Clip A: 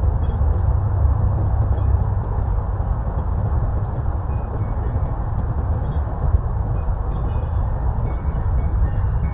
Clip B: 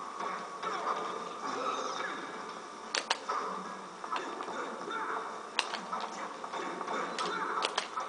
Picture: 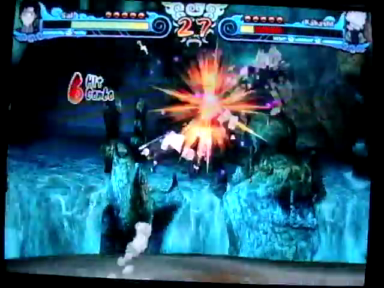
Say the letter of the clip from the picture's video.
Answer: B